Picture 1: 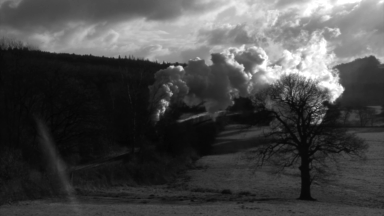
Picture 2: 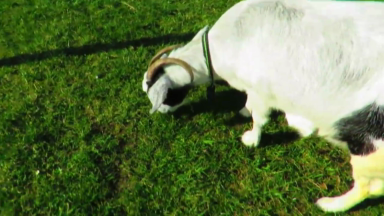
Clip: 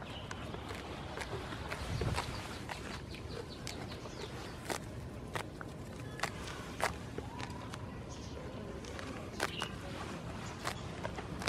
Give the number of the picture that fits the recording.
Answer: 2